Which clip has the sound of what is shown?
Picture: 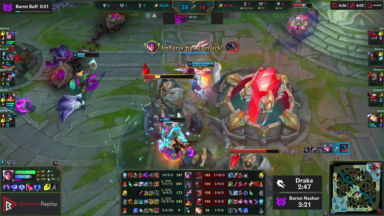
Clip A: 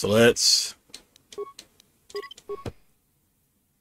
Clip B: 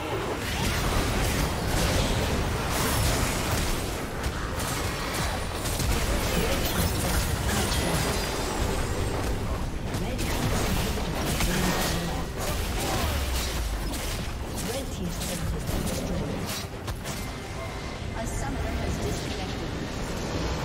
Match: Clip B